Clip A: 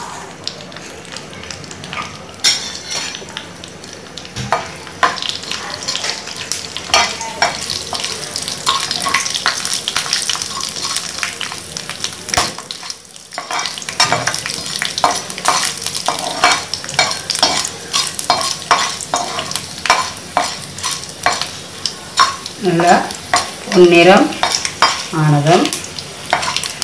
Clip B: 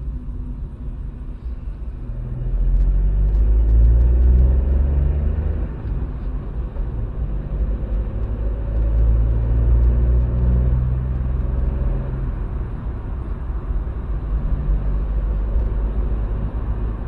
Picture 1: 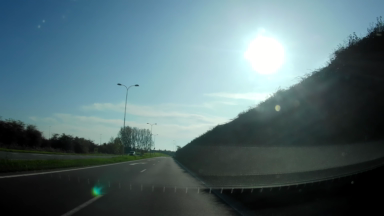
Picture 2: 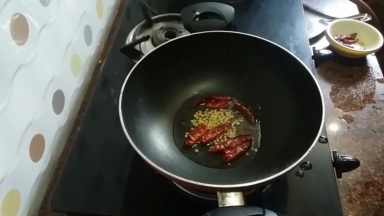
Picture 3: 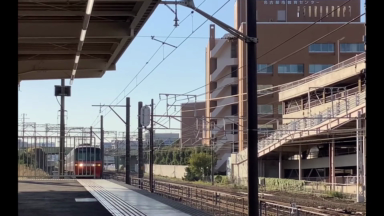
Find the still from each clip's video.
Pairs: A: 2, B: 1